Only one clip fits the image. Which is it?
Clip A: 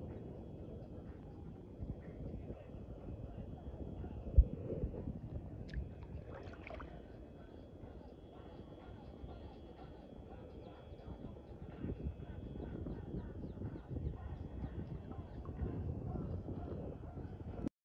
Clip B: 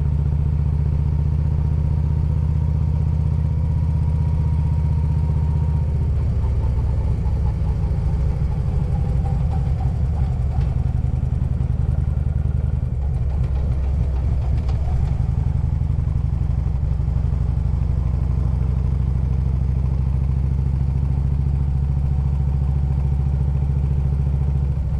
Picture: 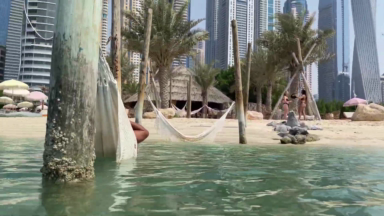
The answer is A